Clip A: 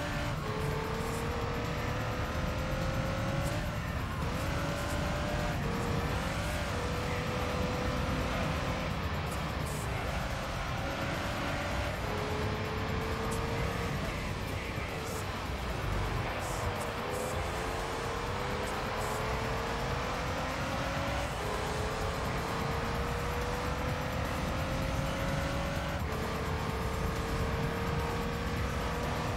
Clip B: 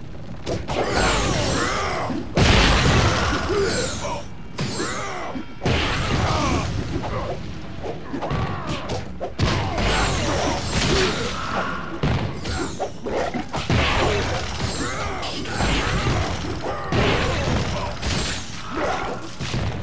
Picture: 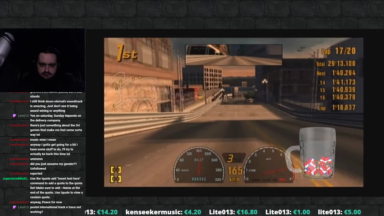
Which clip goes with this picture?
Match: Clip A